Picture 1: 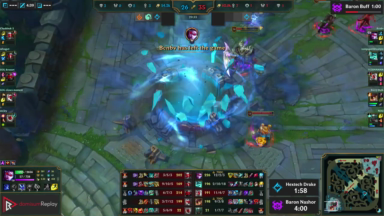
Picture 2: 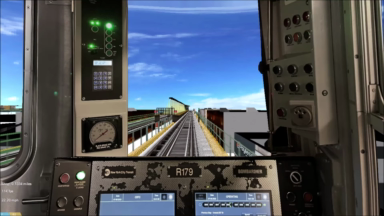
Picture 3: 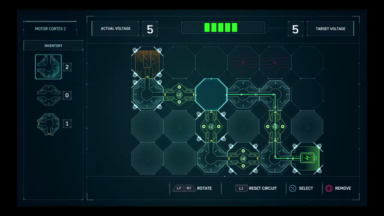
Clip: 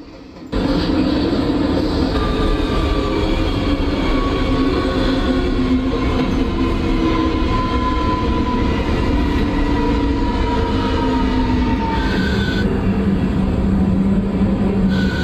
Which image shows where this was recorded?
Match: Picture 2